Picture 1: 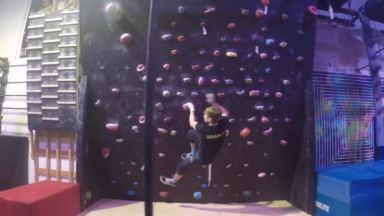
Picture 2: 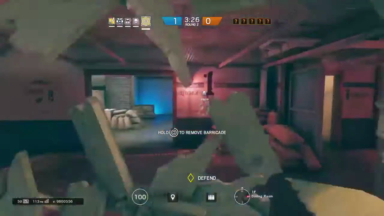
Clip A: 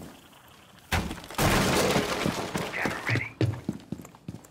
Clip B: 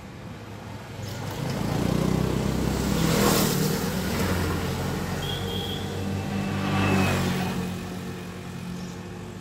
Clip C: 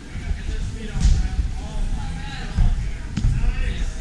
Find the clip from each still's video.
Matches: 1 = C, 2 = A